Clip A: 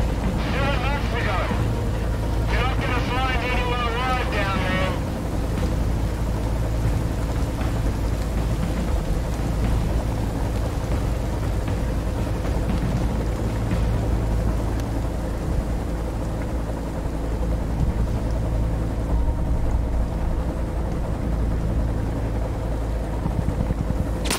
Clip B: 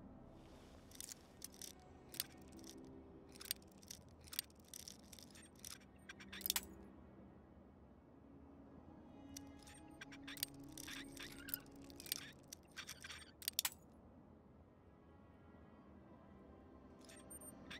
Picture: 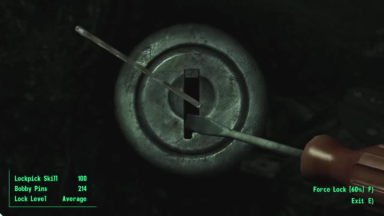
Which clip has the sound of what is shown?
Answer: B